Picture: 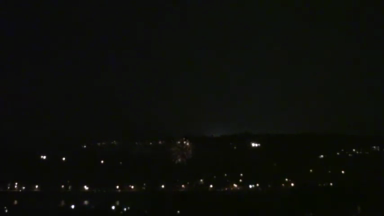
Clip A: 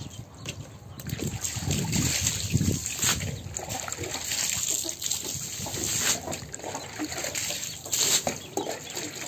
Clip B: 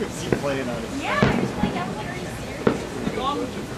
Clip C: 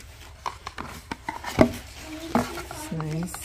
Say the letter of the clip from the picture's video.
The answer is B